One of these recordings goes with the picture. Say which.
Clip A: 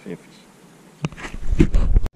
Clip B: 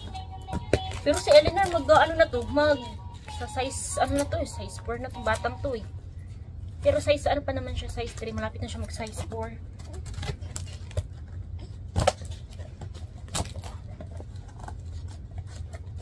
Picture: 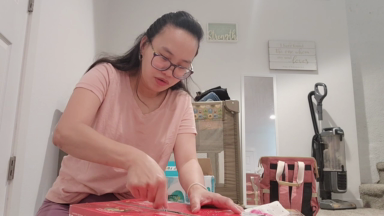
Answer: B